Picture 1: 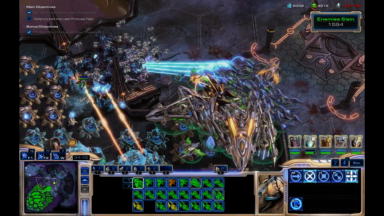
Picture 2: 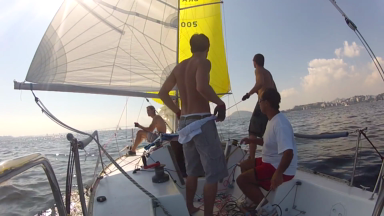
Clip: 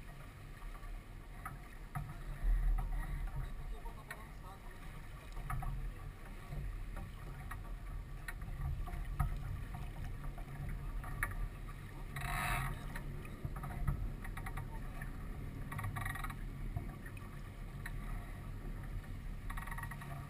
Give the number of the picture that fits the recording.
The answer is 2